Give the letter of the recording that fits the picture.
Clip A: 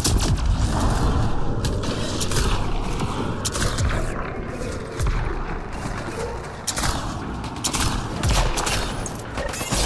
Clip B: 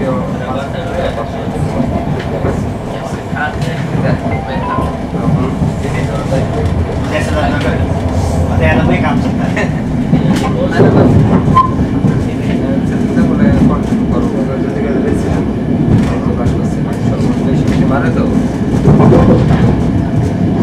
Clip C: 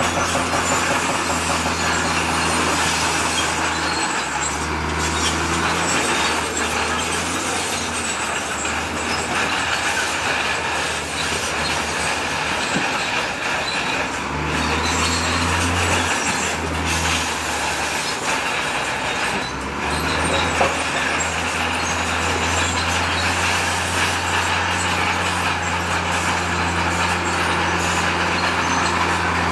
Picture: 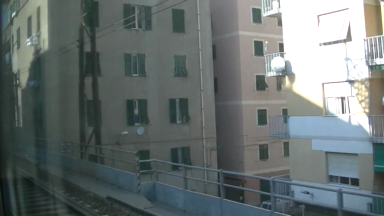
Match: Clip B